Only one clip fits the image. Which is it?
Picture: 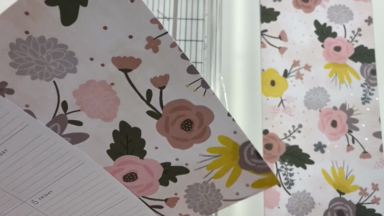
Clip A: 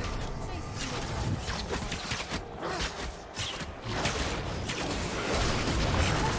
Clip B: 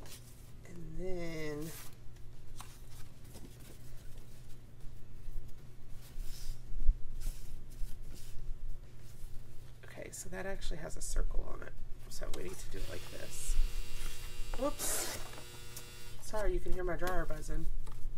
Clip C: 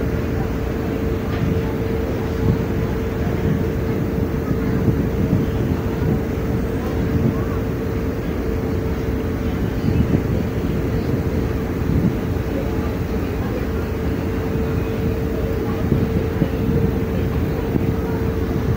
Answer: B